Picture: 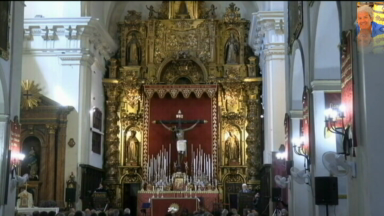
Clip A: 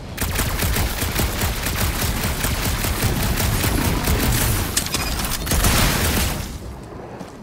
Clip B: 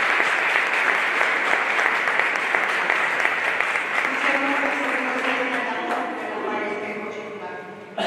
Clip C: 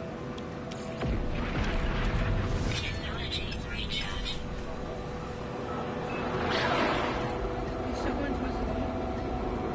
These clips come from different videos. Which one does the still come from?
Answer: B